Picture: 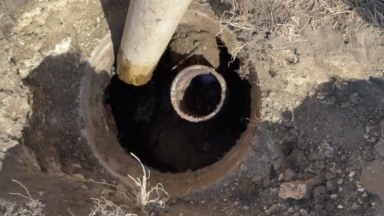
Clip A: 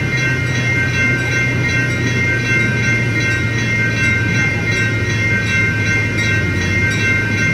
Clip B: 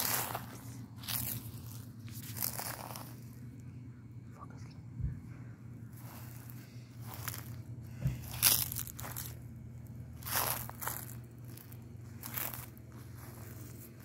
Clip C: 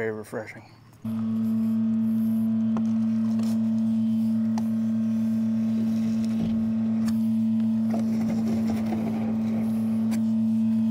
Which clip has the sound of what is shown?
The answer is C